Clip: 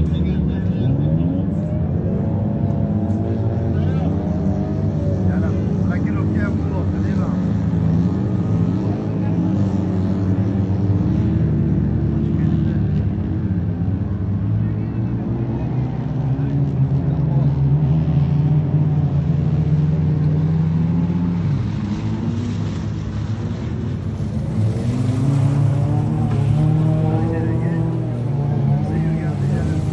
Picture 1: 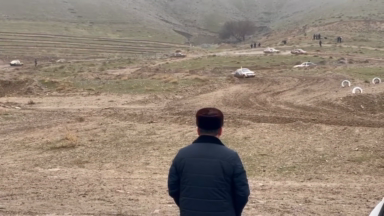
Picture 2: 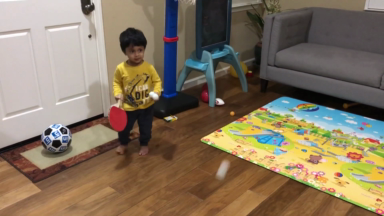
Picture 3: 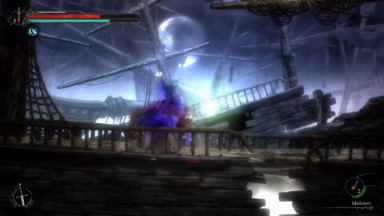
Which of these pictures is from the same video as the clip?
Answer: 1